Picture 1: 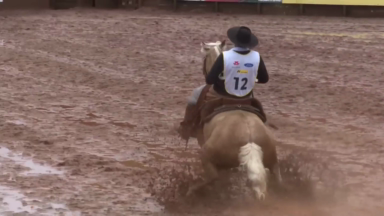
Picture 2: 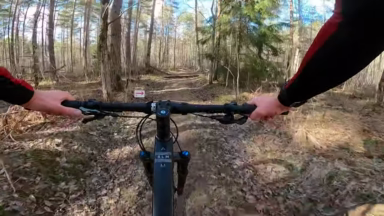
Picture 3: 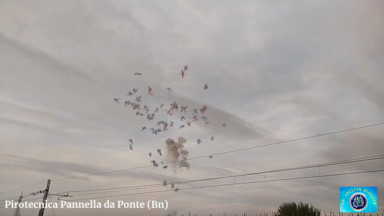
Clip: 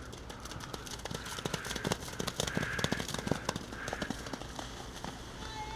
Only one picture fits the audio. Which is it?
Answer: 1